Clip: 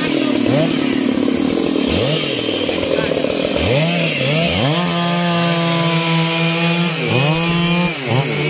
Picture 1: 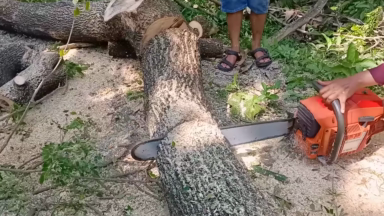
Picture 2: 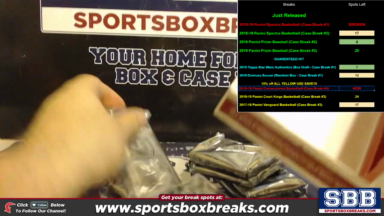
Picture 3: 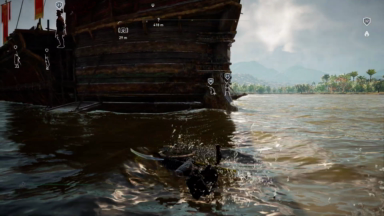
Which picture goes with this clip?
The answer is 1